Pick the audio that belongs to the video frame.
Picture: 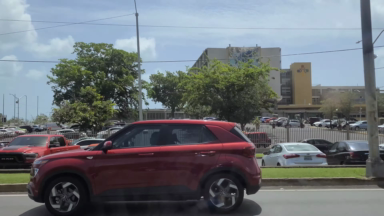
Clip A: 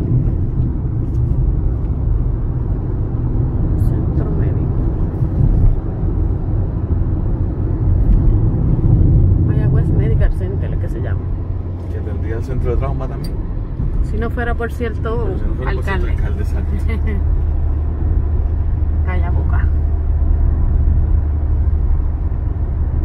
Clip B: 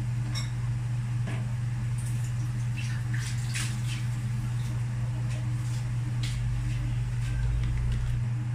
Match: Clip A